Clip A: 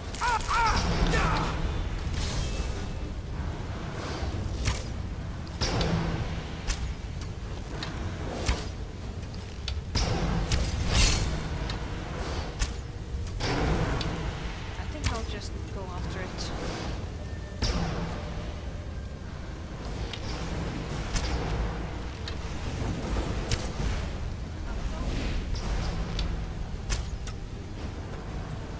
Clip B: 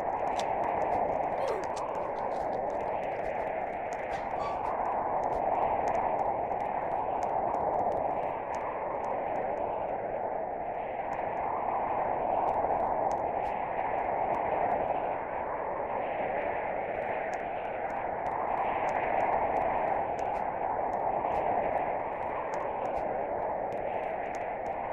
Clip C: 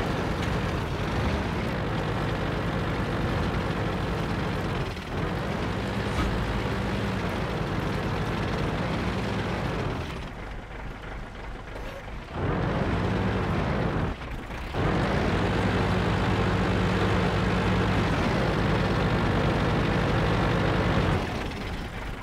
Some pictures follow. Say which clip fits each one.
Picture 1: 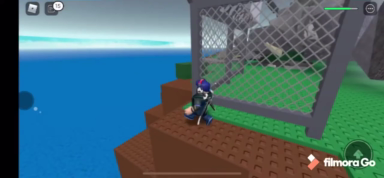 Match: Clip B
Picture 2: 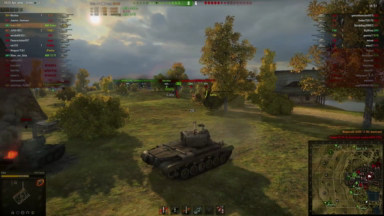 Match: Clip C